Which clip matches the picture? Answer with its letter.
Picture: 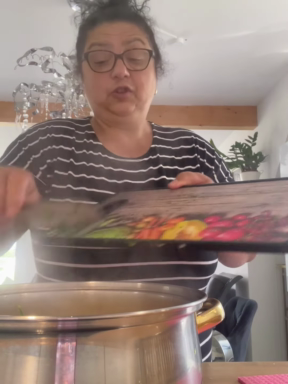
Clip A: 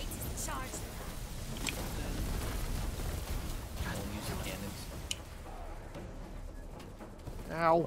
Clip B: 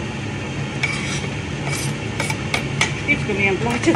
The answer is B